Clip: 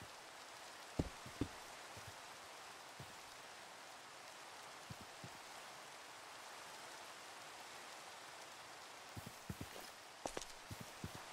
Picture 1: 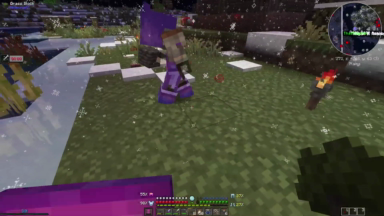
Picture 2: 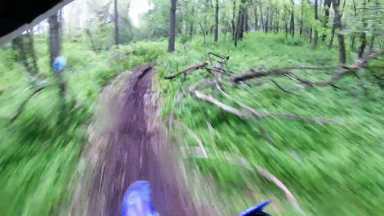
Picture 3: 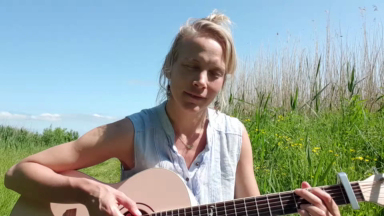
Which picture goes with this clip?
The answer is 1